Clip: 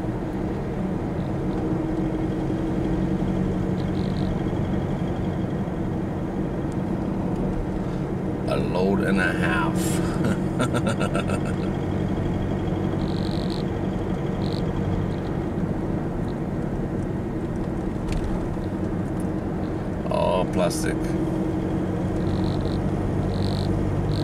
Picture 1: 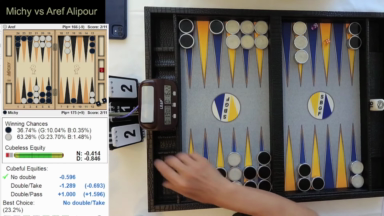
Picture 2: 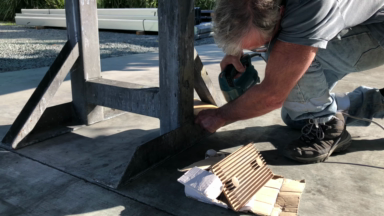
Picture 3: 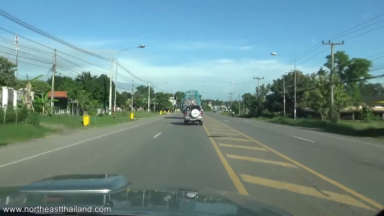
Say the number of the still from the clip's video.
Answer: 3